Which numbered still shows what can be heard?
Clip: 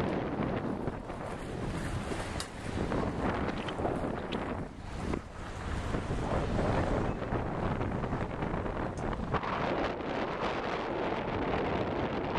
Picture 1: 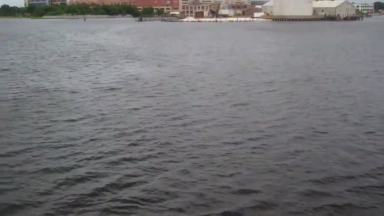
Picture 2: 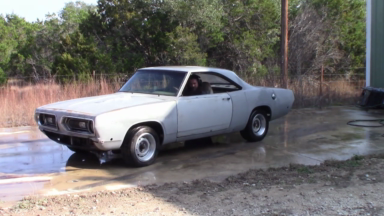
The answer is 1